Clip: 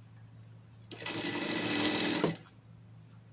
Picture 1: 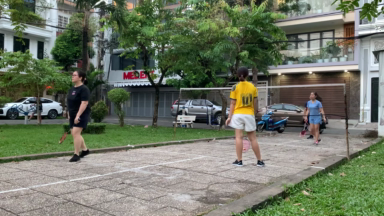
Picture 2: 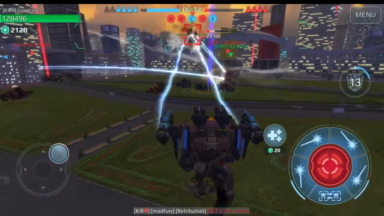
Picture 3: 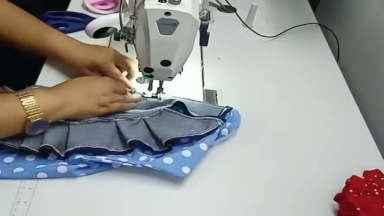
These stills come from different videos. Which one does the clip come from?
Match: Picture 3